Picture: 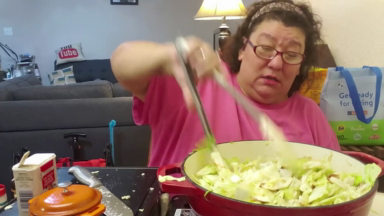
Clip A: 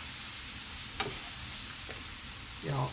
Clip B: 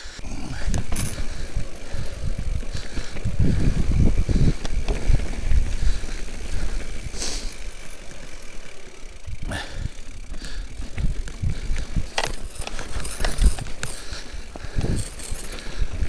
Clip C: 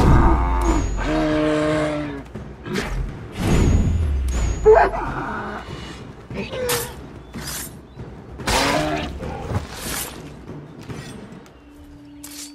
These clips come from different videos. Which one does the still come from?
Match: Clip A